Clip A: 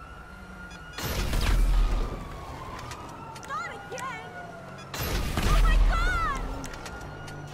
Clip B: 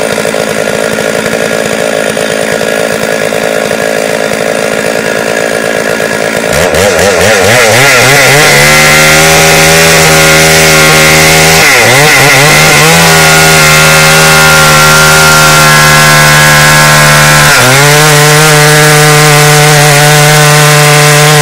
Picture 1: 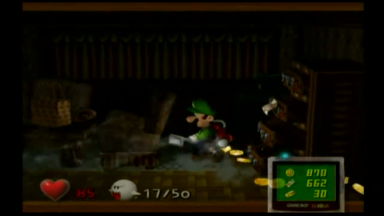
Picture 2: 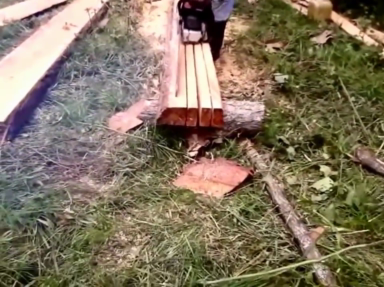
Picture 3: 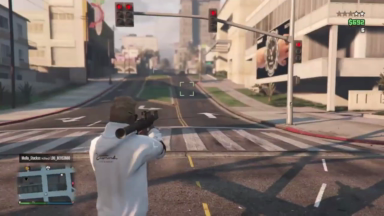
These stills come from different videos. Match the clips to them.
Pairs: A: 3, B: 2